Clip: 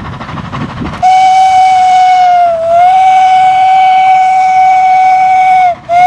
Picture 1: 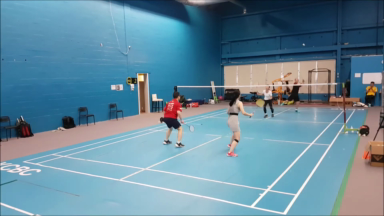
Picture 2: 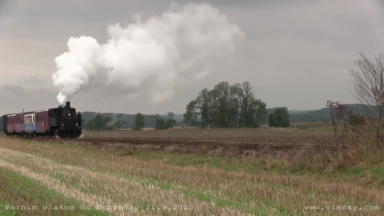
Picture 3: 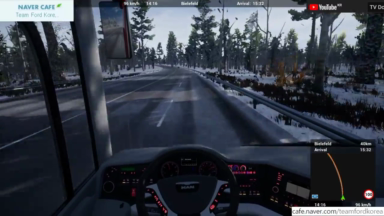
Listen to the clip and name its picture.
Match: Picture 2